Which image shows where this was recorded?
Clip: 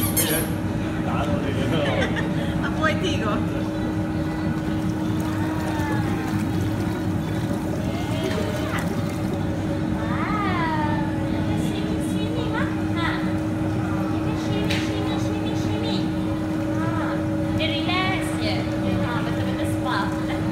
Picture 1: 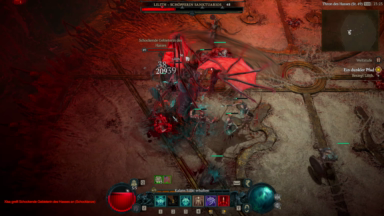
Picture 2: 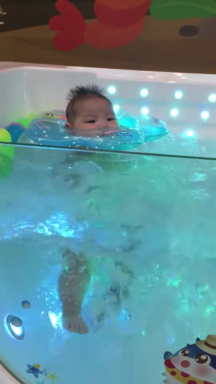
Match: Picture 2